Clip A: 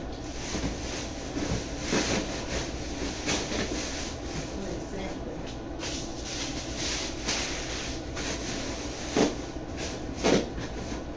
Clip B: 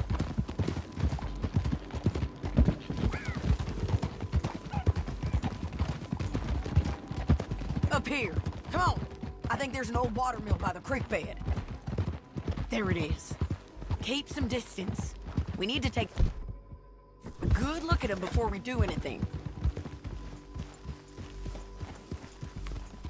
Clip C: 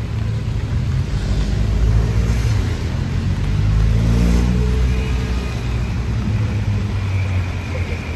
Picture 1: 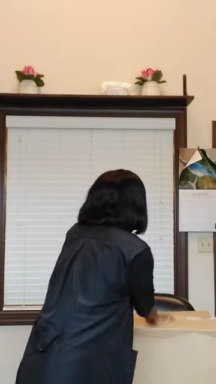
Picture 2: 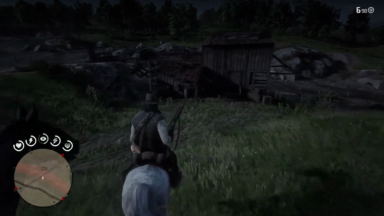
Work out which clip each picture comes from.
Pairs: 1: A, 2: B